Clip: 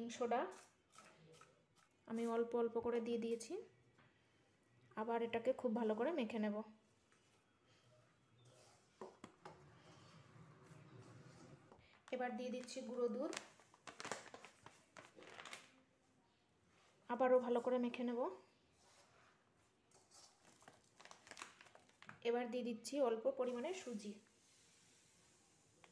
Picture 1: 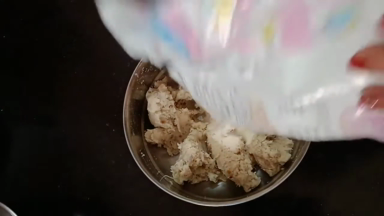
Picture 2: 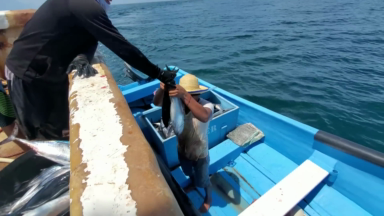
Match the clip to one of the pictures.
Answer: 1